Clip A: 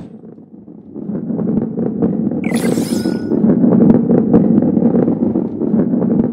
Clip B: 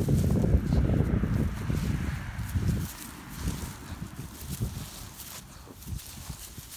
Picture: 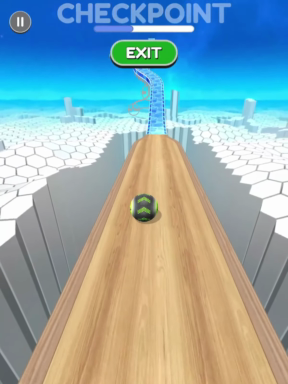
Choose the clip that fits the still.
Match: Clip A